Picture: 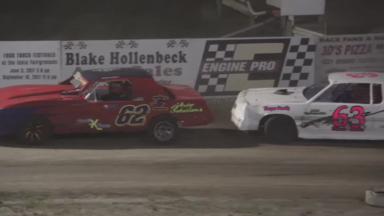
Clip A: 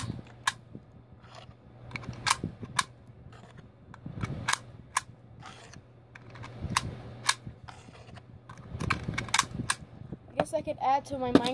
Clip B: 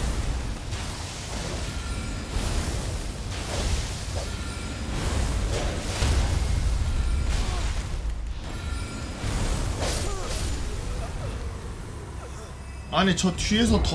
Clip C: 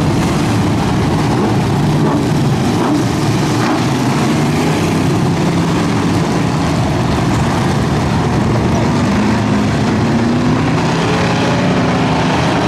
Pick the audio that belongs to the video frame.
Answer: C